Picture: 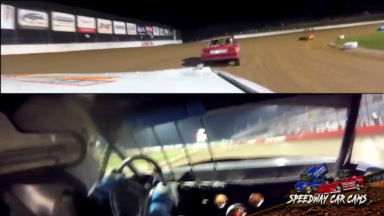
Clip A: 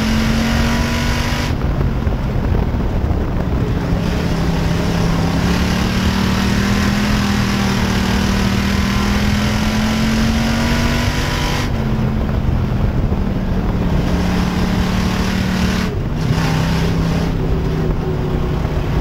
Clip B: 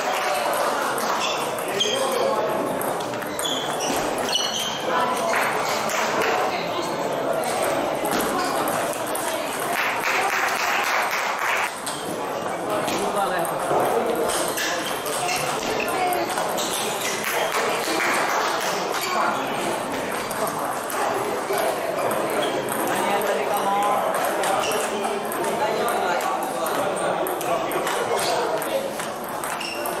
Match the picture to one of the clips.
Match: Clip A